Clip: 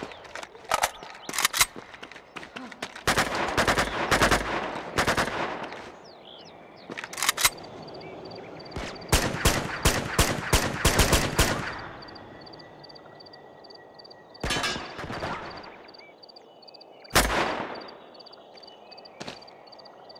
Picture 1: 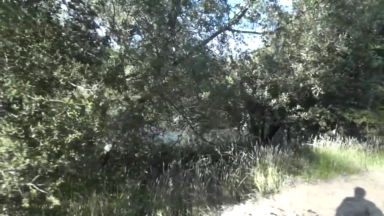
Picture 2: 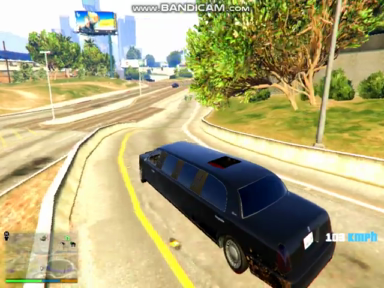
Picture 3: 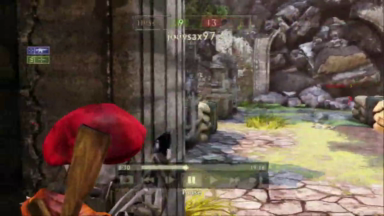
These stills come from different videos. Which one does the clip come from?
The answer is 3